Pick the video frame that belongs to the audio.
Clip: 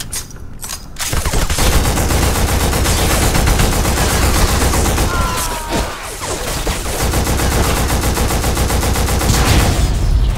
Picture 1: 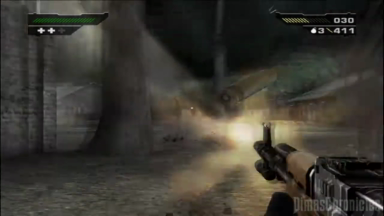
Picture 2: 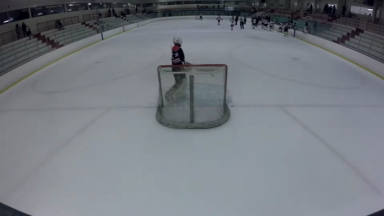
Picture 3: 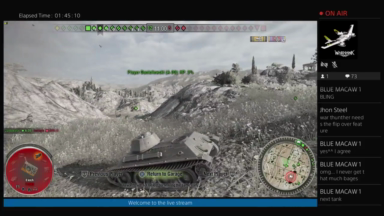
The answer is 1